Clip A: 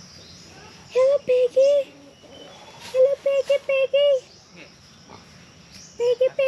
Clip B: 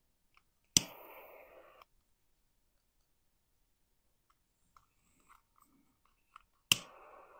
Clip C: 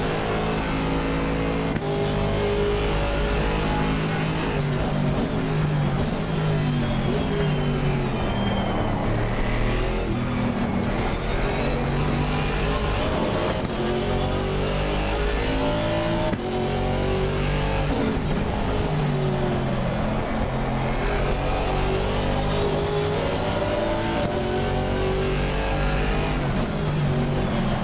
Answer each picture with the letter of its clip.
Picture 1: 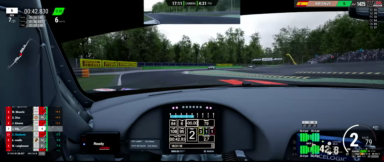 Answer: C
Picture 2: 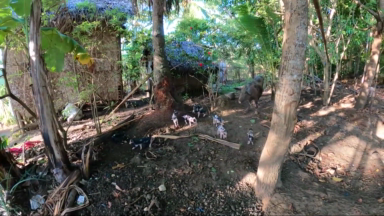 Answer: A